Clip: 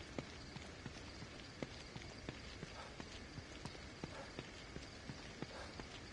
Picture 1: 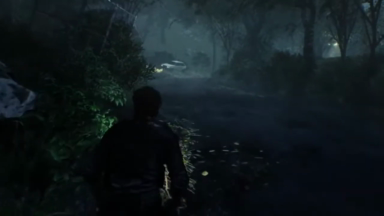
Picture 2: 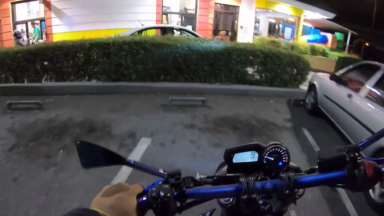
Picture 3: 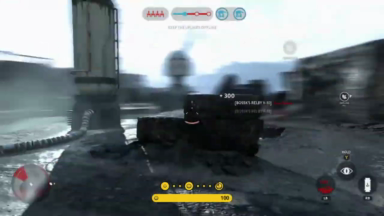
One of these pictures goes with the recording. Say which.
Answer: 1